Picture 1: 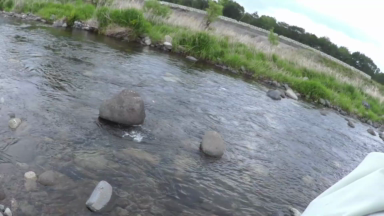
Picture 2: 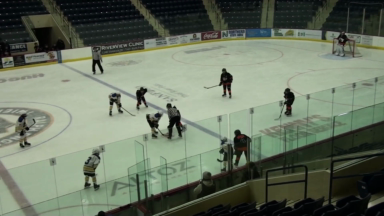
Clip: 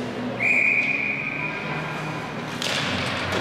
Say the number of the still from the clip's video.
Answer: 2